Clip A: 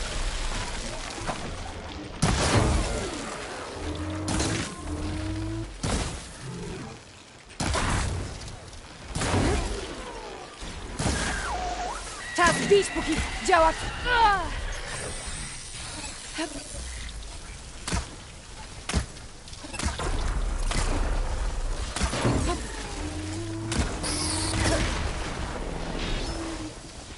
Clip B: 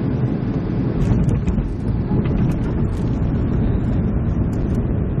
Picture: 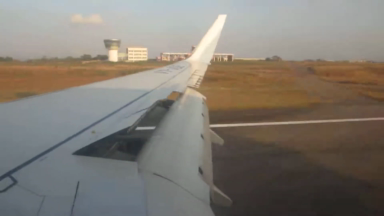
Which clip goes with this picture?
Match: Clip B